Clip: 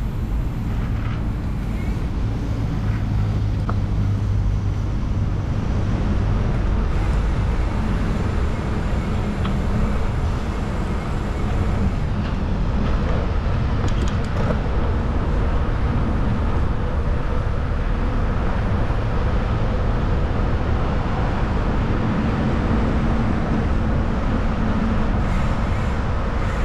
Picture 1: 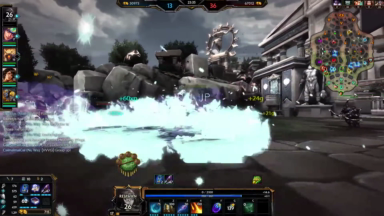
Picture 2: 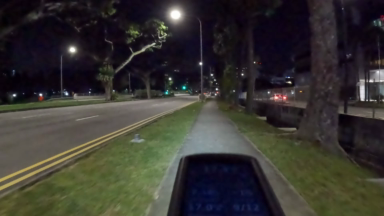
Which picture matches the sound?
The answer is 2